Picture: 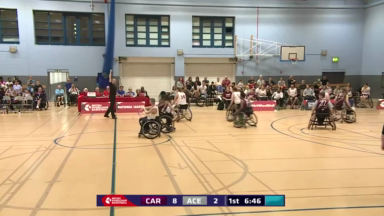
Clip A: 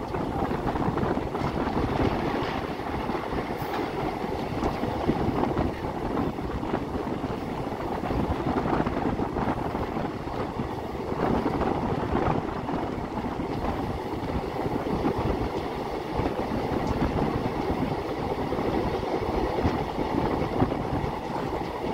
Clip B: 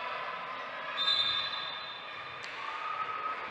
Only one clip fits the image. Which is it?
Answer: B